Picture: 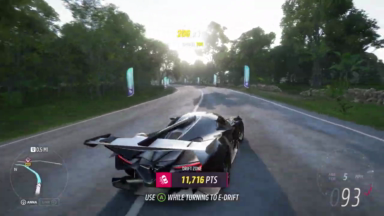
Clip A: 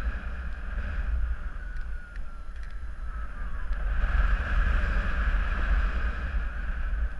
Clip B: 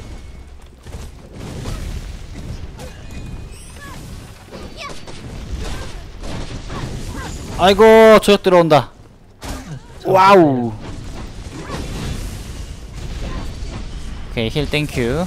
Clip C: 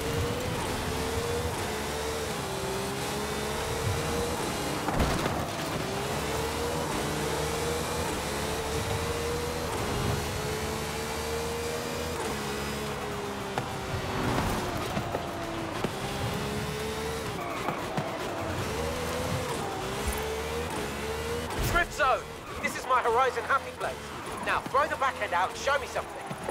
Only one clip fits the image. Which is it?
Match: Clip C